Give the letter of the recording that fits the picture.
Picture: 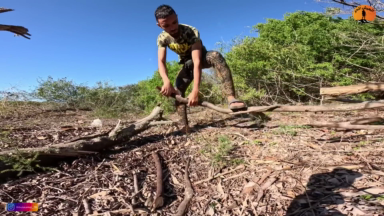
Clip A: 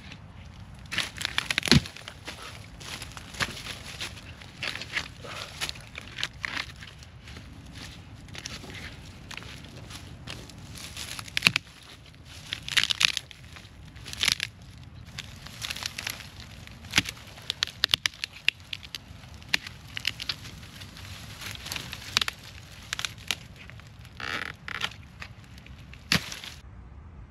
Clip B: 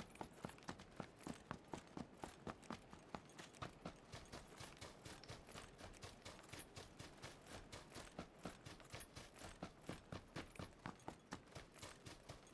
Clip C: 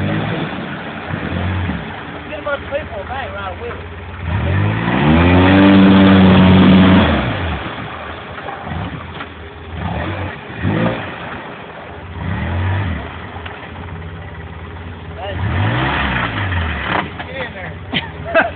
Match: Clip A